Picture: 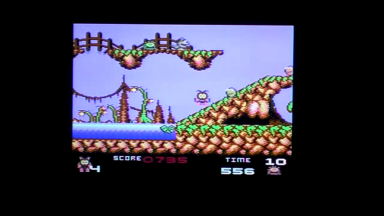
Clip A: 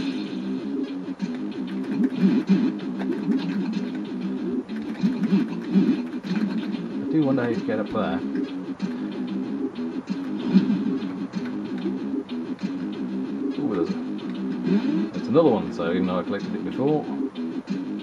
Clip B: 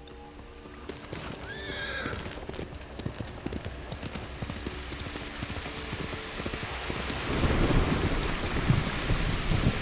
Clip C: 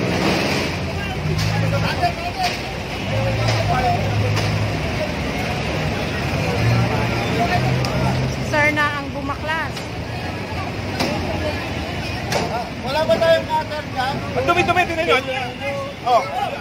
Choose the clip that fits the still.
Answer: A